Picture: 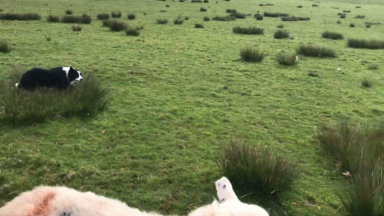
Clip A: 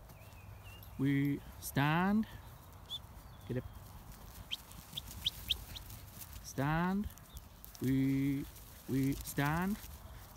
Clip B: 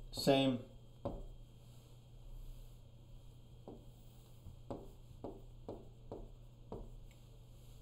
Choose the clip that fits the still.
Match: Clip A